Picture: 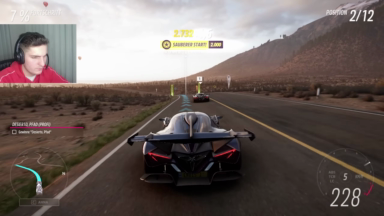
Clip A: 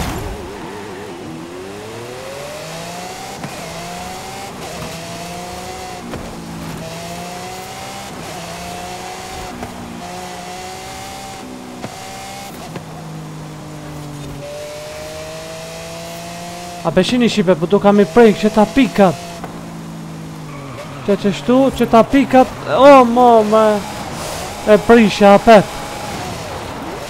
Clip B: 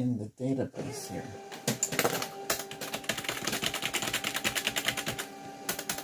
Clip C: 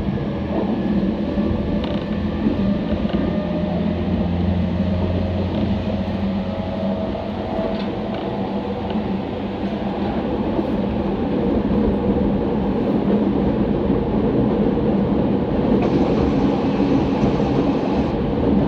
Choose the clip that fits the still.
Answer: A